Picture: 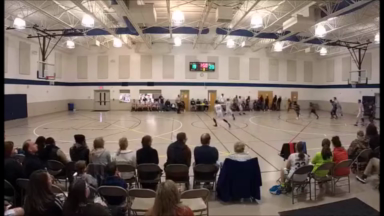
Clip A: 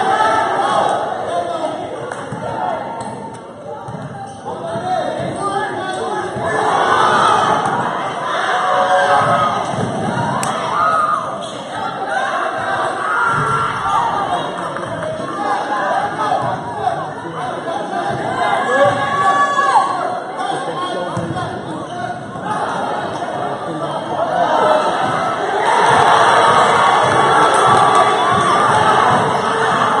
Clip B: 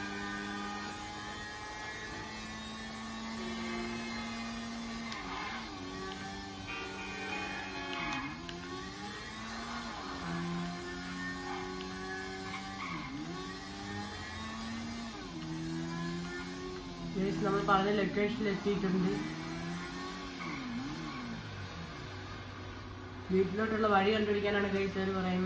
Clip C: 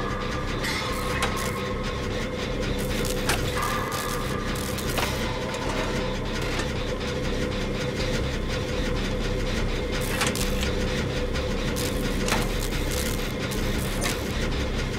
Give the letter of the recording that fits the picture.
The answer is A